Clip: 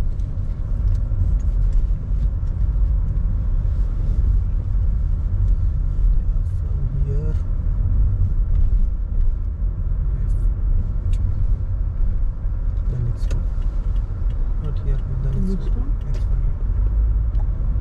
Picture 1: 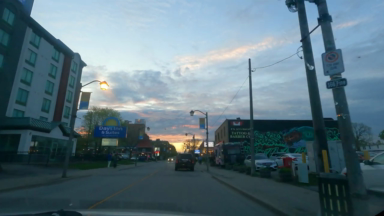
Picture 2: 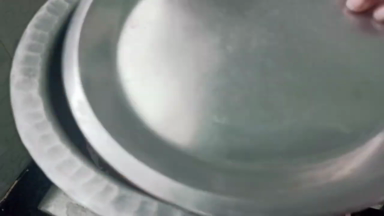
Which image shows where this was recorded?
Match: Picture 1